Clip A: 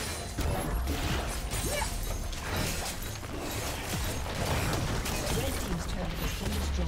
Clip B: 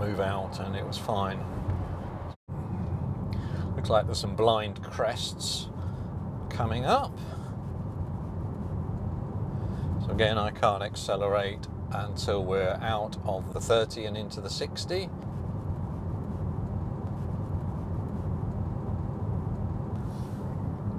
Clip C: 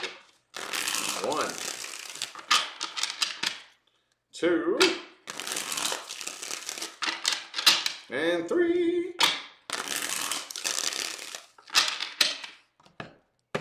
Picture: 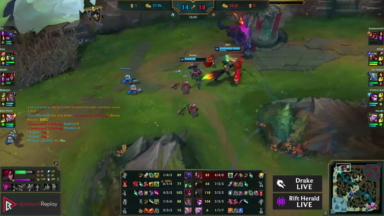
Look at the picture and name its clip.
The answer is A